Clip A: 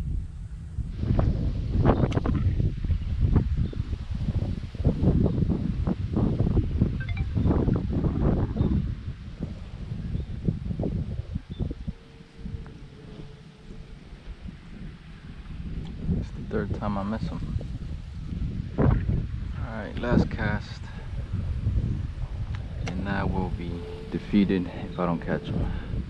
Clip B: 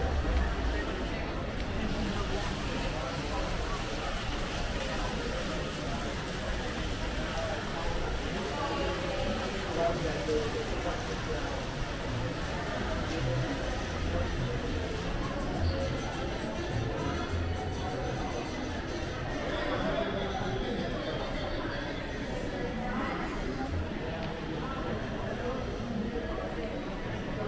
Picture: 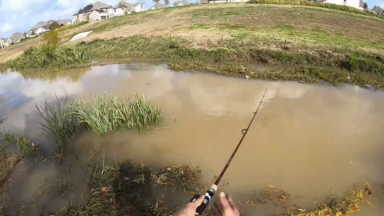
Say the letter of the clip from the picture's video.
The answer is A